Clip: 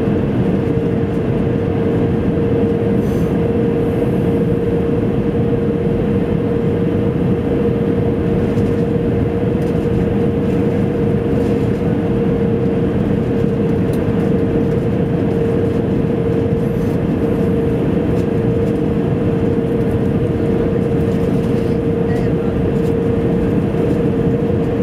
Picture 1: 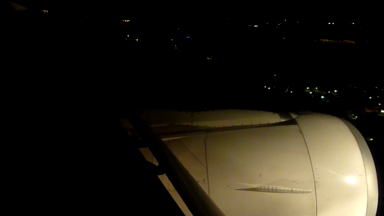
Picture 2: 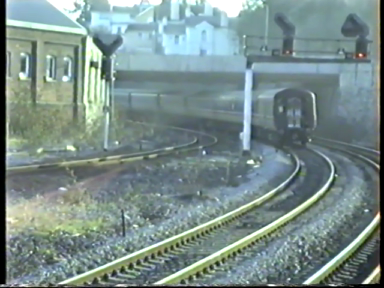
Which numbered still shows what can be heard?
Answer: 1